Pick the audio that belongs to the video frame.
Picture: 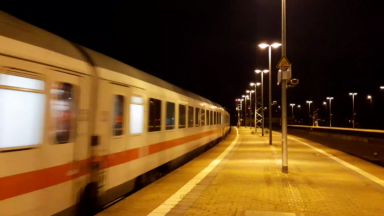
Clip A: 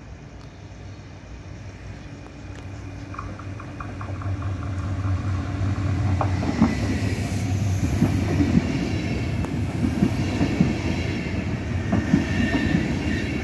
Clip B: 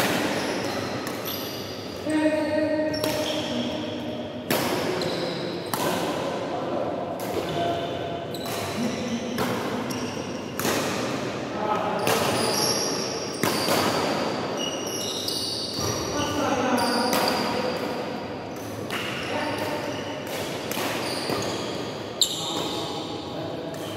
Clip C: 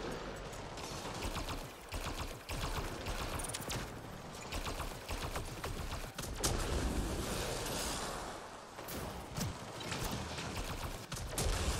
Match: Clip A